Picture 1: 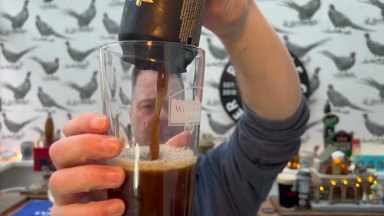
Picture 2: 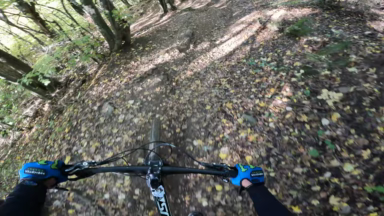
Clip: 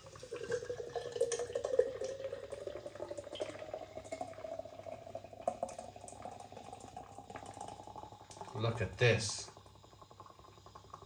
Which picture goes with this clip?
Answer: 1